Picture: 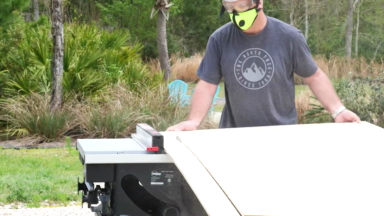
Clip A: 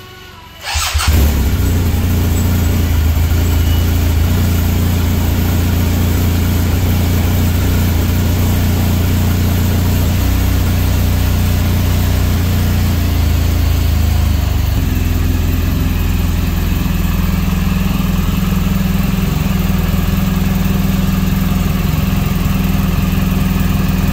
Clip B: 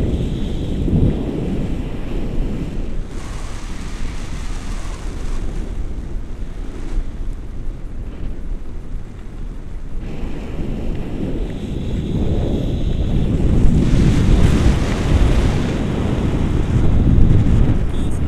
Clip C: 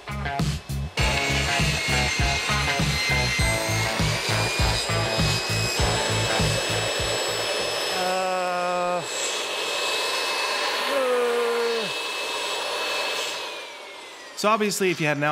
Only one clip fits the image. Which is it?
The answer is C